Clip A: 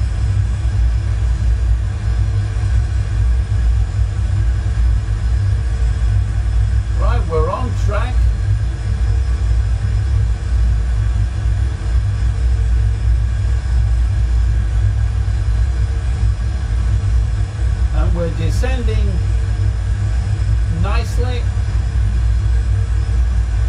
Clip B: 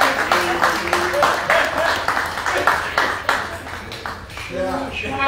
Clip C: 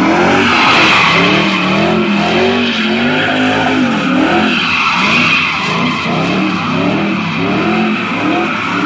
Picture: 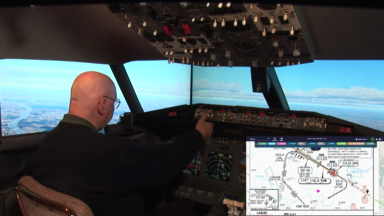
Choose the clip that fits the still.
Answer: A